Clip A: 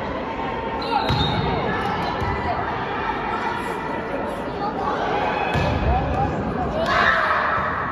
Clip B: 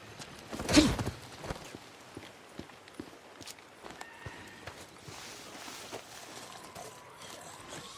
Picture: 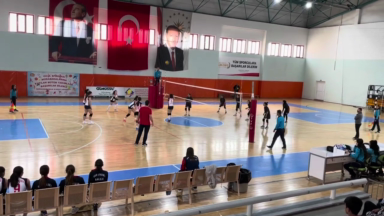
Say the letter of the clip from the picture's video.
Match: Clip A